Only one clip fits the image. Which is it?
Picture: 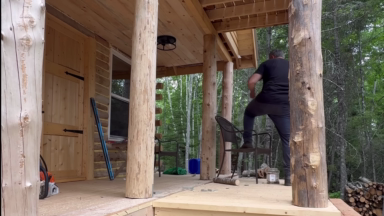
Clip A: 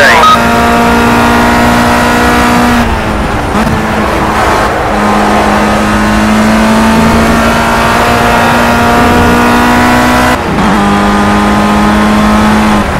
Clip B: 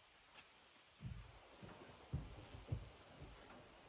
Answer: B